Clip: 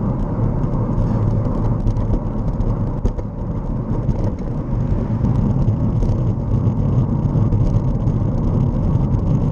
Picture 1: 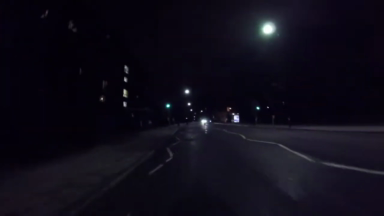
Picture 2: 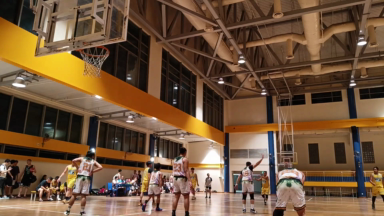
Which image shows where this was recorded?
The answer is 1